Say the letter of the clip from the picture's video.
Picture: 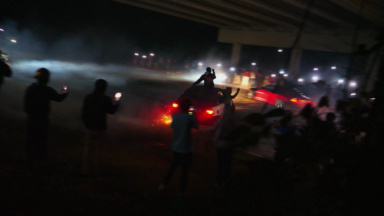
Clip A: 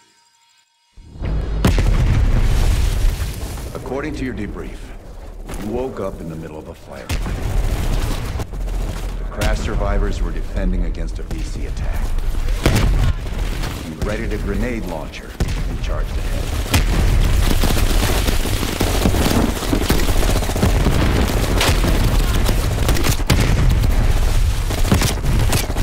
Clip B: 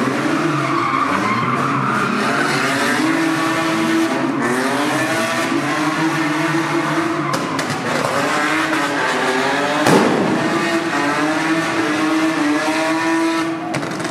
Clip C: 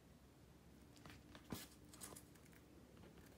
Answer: B